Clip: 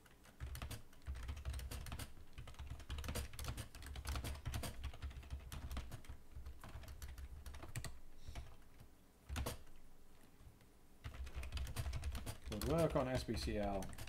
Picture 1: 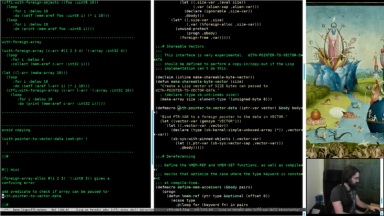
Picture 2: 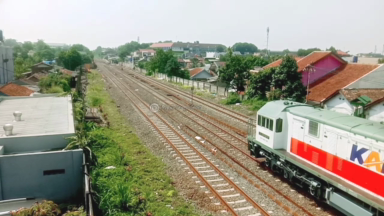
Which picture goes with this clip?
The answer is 1